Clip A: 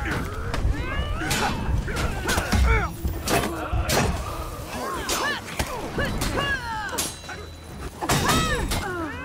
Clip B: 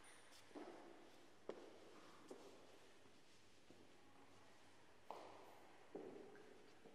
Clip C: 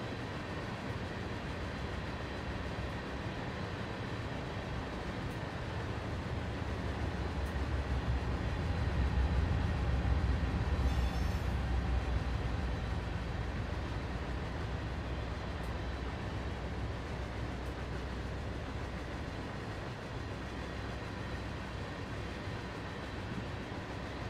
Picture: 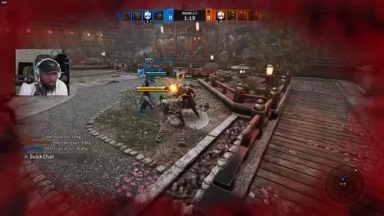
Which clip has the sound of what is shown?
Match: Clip A